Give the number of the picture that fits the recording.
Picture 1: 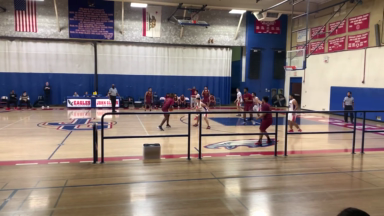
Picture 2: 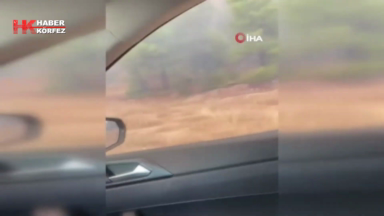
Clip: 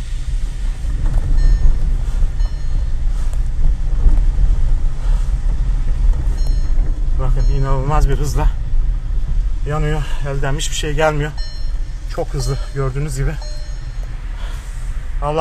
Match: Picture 2